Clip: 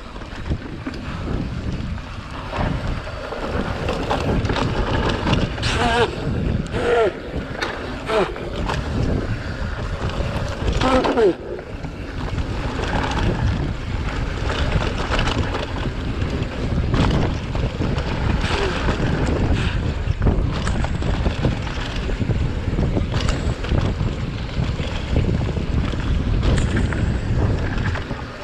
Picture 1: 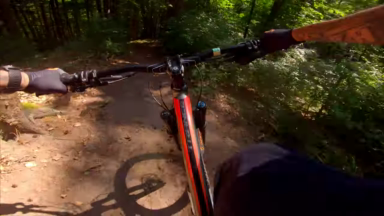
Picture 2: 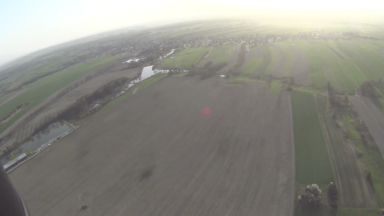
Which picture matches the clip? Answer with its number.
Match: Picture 1